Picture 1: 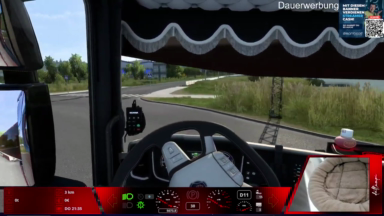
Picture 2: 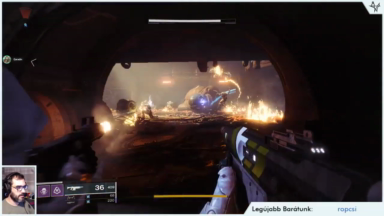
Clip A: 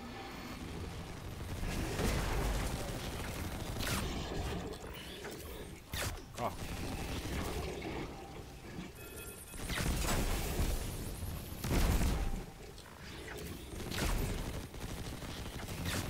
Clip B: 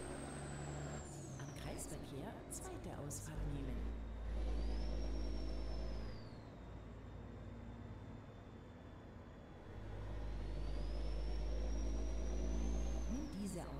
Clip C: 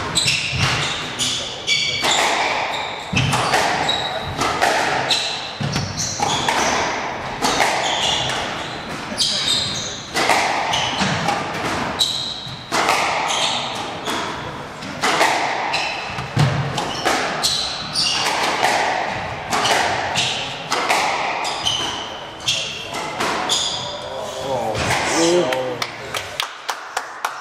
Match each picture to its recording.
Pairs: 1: B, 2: A